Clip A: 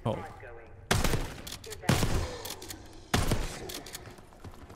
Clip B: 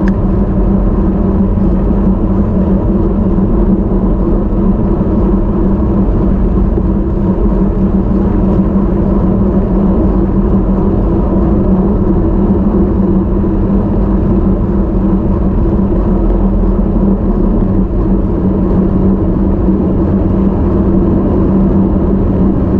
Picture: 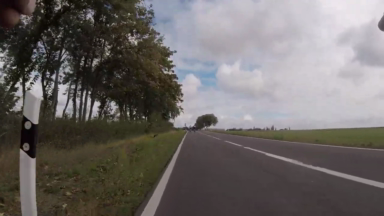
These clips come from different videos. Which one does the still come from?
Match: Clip B